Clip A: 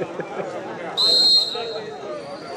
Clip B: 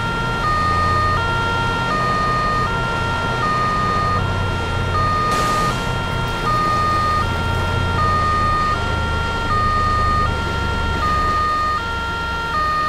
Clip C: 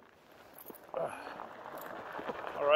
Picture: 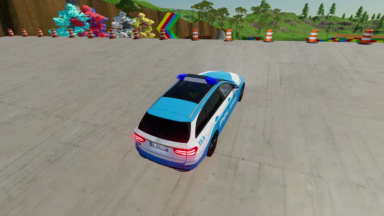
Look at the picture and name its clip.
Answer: B